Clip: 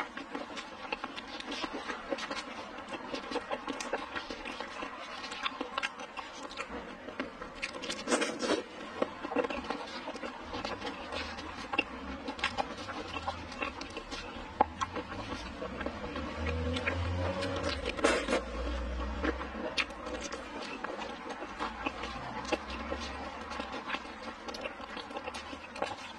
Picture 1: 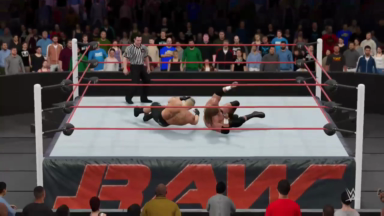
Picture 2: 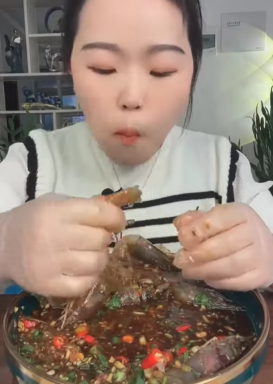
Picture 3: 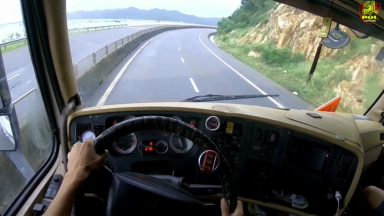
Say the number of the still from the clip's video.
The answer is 2